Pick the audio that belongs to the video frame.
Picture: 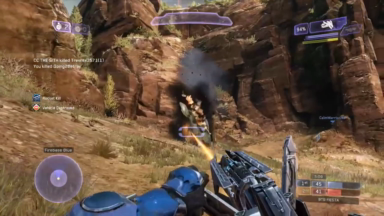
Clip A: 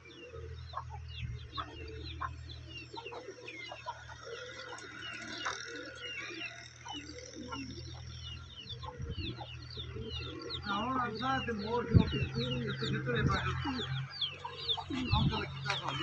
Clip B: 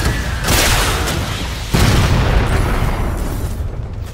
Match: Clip B